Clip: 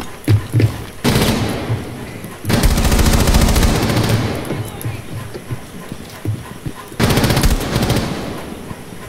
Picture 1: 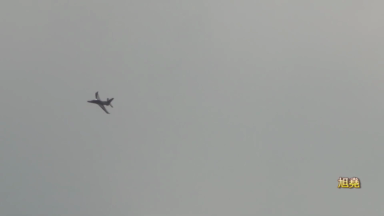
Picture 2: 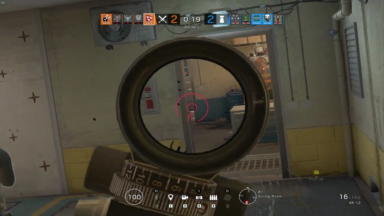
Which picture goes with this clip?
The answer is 2